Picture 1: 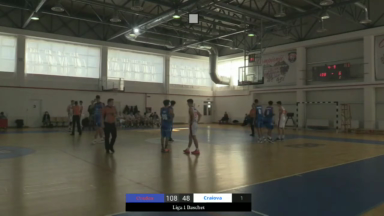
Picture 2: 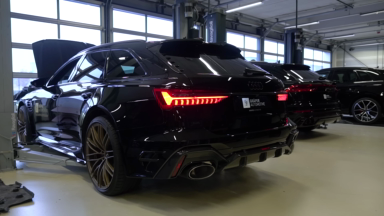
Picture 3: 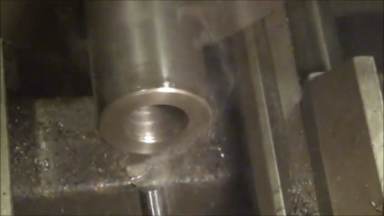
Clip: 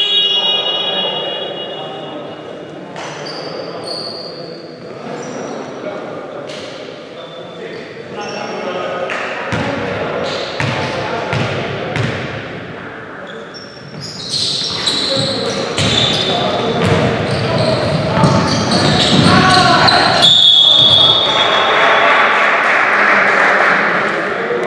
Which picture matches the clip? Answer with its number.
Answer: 1